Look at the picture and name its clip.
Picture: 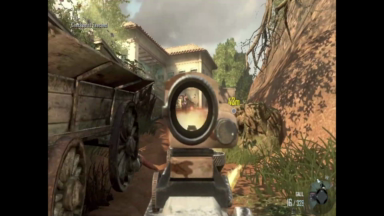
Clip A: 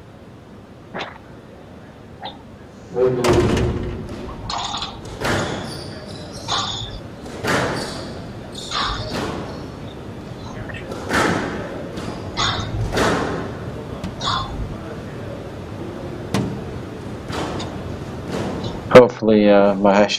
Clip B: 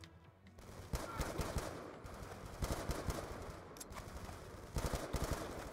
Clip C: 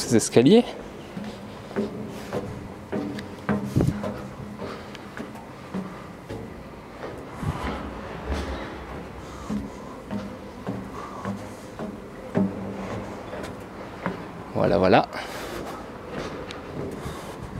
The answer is B